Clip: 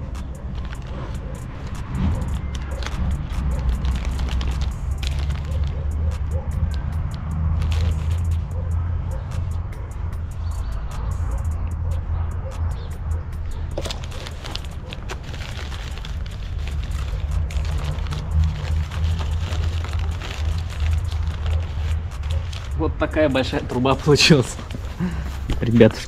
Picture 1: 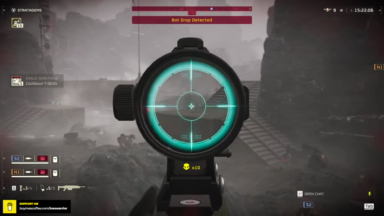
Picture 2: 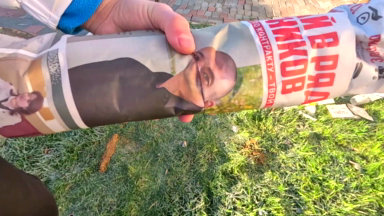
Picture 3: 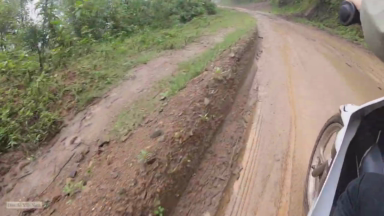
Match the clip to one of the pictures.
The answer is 2